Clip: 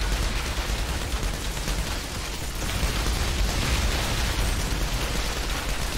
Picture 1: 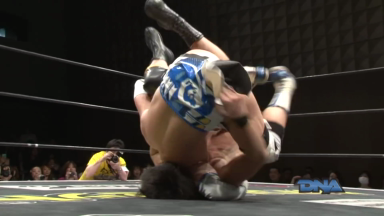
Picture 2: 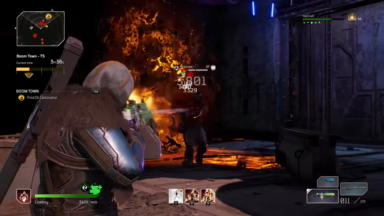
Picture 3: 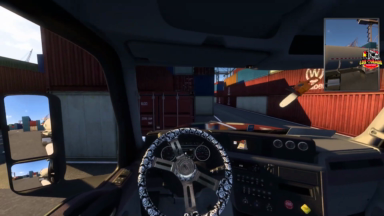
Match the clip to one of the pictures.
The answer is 2